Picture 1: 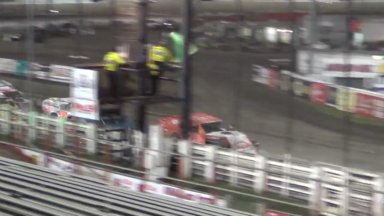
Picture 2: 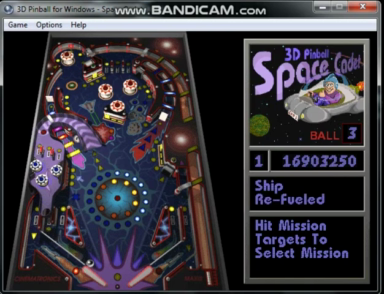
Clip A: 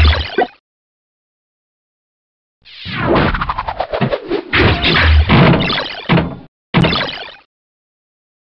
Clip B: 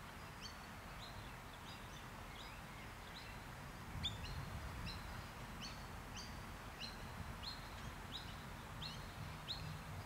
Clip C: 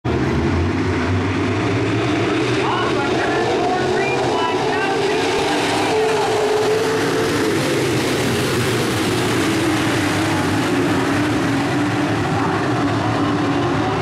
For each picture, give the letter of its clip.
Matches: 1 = C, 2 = A